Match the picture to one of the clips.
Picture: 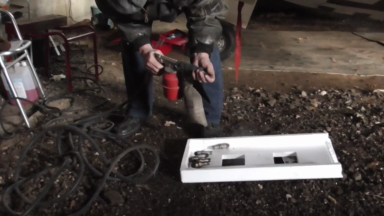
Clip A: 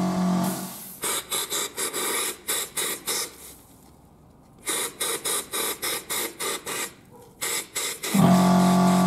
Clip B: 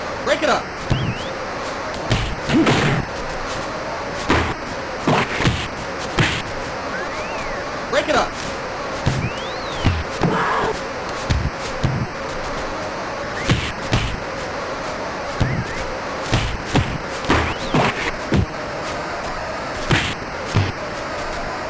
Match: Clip A